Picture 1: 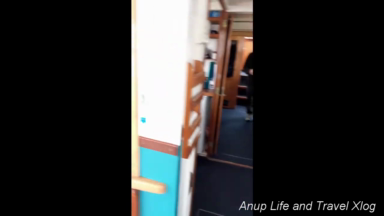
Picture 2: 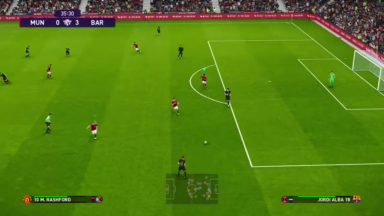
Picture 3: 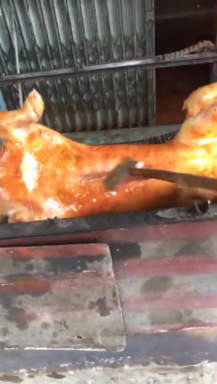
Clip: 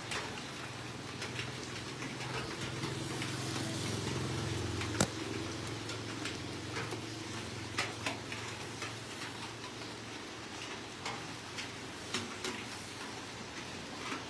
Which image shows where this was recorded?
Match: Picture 3